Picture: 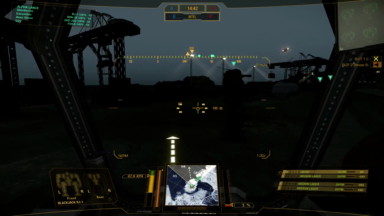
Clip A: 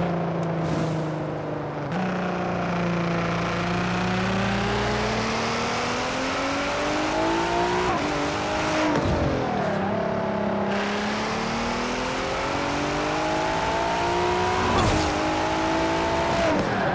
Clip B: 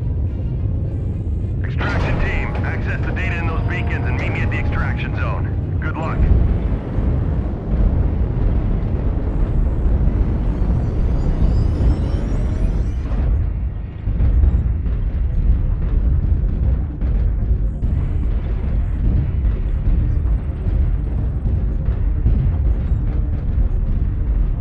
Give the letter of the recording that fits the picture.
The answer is B